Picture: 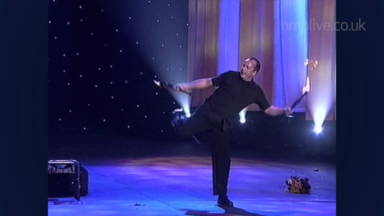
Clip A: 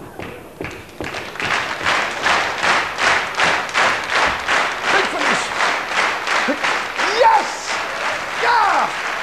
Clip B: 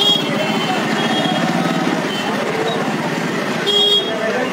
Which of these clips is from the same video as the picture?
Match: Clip A